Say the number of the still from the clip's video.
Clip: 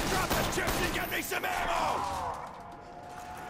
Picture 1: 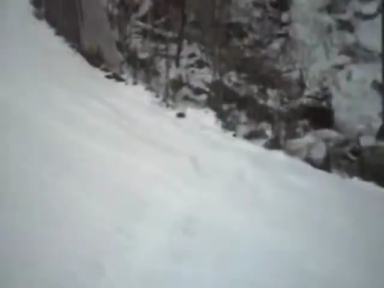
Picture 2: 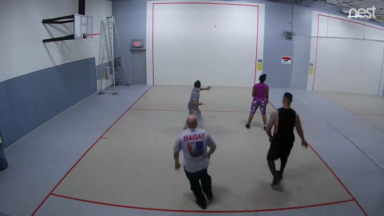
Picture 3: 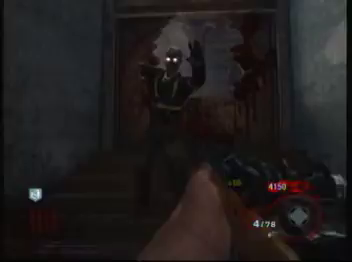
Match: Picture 3